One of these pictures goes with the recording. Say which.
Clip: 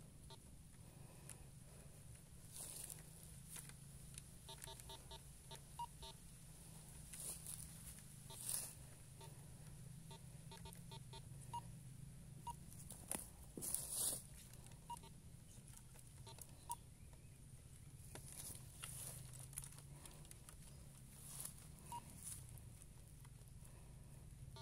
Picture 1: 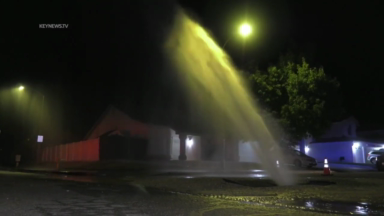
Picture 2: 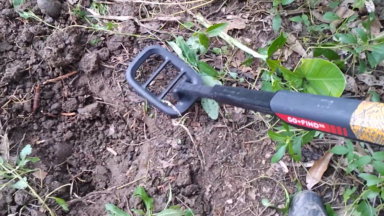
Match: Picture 2